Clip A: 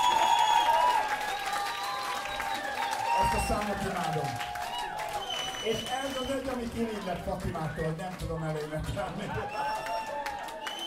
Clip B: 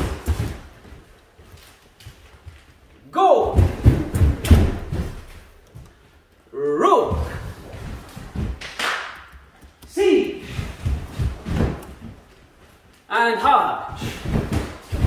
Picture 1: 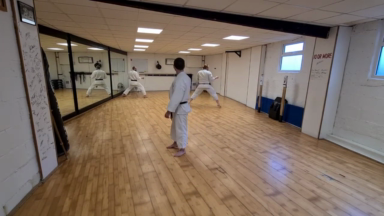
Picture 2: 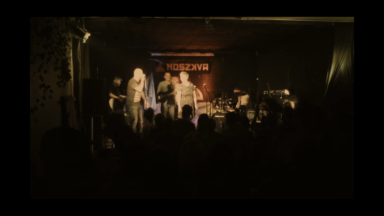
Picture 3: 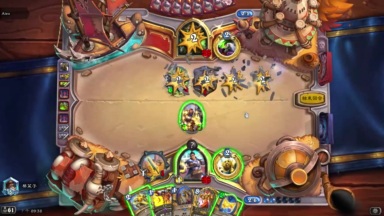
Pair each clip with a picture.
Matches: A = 2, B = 1